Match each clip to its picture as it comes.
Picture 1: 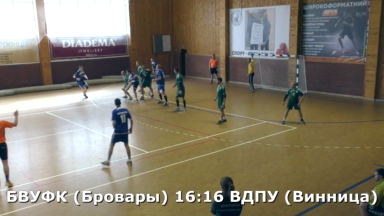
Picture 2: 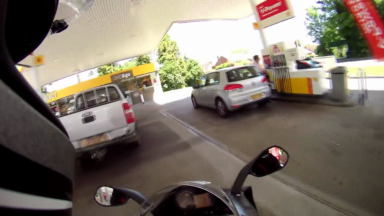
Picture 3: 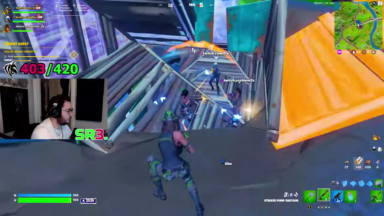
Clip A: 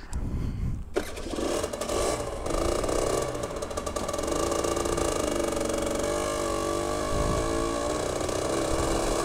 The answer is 2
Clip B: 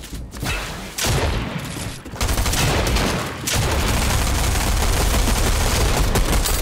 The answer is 3